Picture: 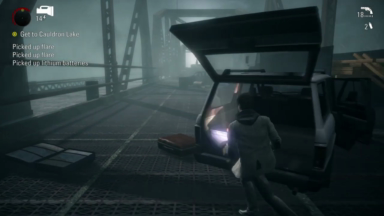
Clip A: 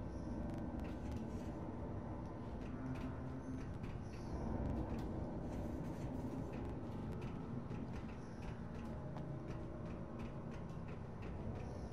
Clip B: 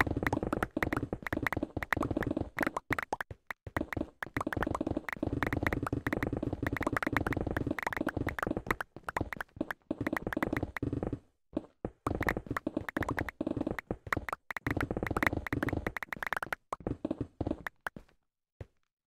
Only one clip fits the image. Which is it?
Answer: A